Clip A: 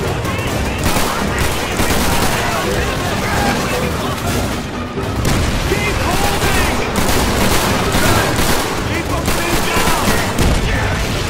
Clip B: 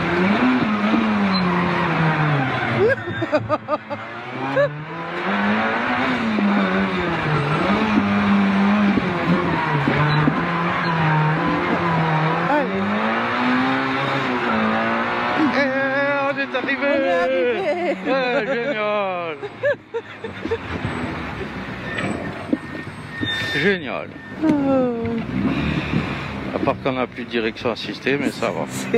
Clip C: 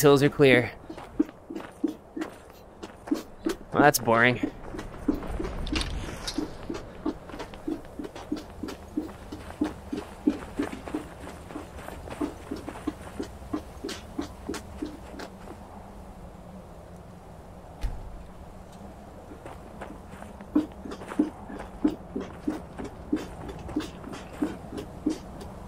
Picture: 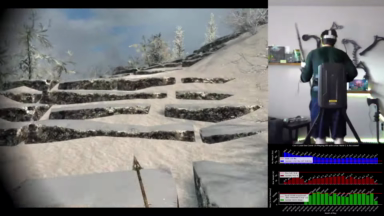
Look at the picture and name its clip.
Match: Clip C